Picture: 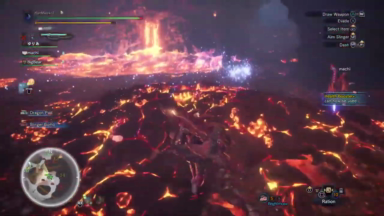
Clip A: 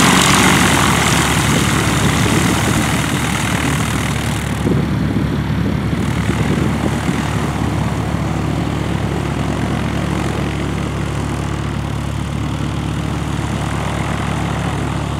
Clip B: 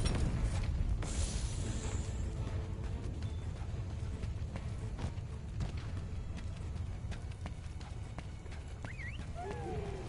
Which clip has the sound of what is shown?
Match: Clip B